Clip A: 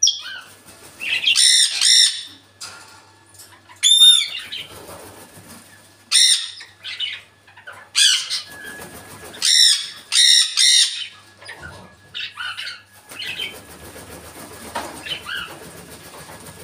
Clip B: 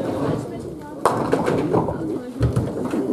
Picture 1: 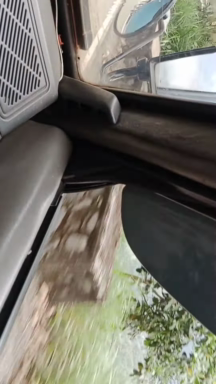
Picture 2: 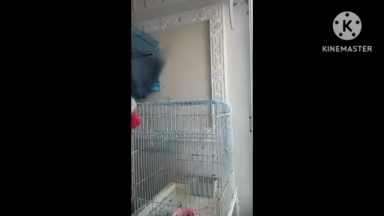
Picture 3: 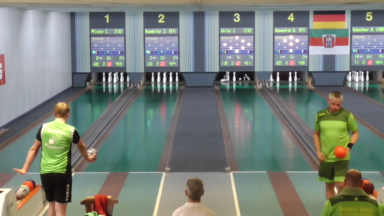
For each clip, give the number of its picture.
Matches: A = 2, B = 3